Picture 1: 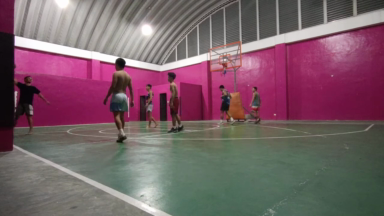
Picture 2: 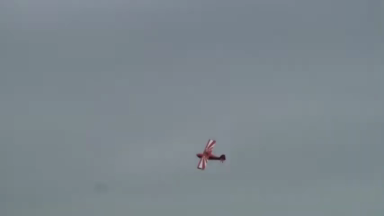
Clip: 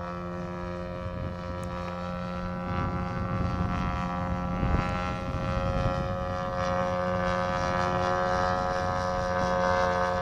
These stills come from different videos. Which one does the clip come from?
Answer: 2